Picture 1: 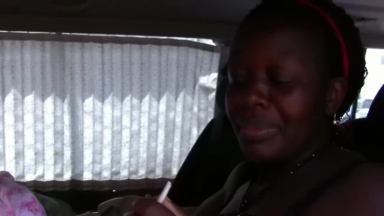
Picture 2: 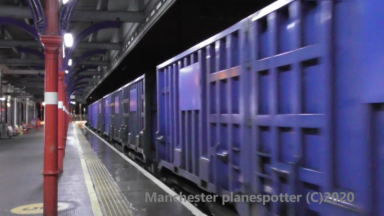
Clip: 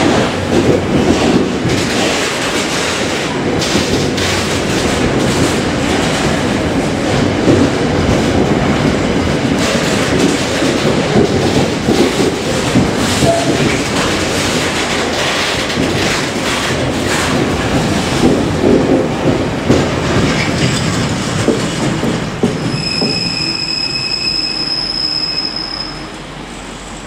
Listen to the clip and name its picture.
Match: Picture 2